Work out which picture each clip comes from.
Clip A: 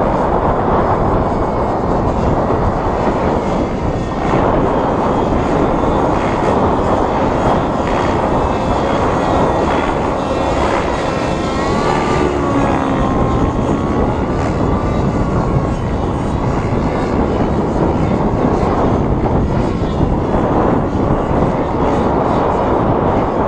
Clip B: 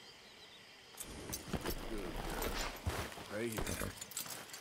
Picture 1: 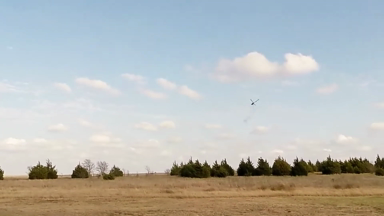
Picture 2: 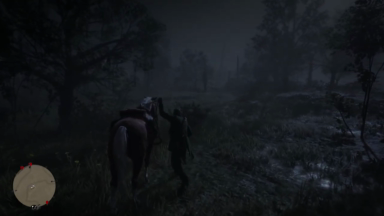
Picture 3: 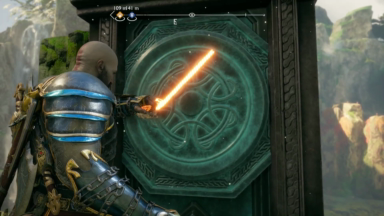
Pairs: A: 1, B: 2